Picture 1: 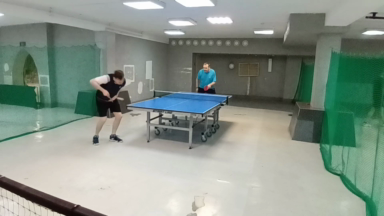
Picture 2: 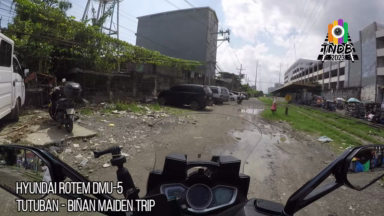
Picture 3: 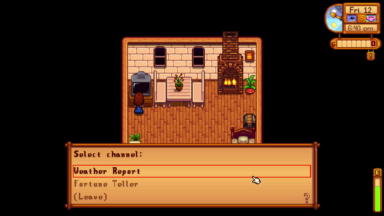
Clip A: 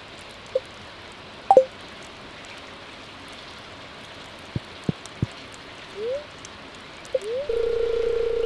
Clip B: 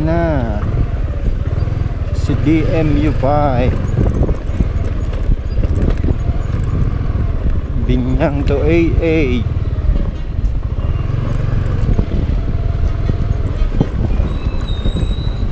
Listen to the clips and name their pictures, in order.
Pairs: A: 3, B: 2